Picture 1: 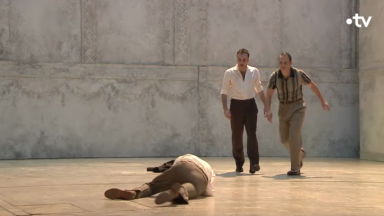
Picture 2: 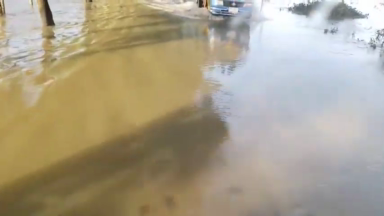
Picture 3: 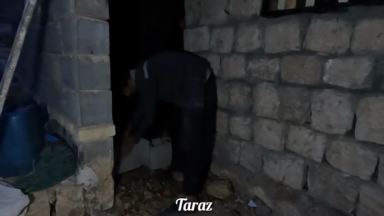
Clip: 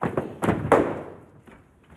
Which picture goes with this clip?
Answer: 1